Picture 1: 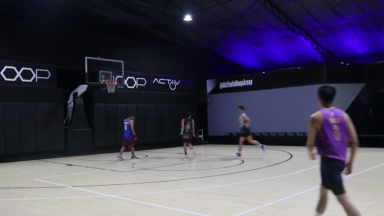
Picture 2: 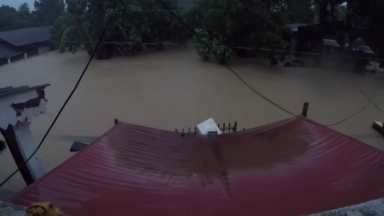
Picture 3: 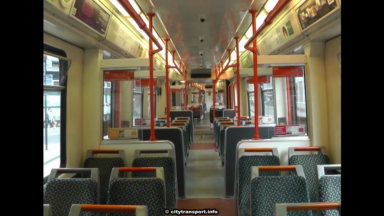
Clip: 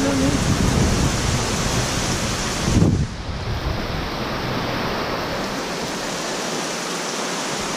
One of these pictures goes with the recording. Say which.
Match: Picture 2